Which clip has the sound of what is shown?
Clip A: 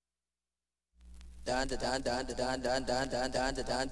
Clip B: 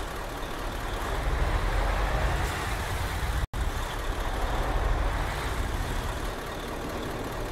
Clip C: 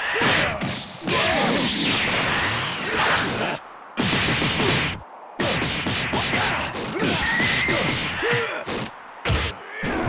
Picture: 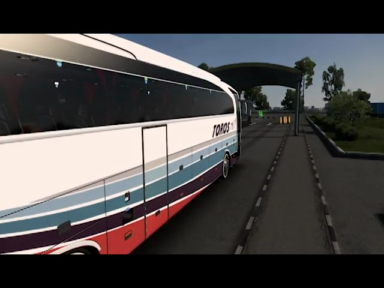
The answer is B